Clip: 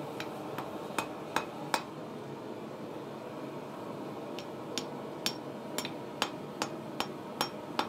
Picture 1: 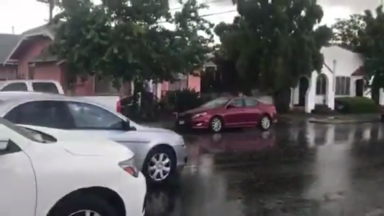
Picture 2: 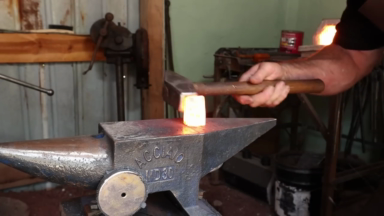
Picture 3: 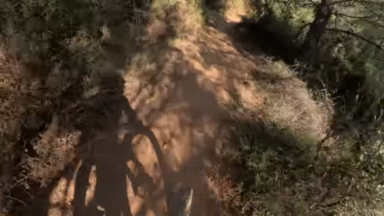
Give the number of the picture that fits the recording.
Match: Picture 2